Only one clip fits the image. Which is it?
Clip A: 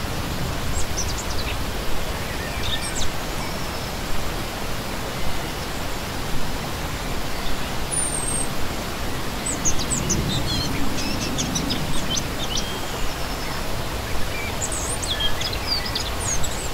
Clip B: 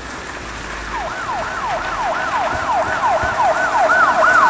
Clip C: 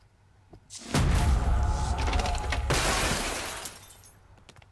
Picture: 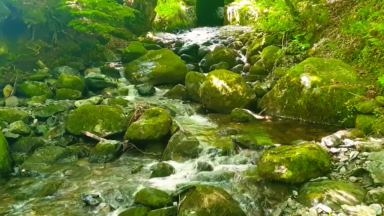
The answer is A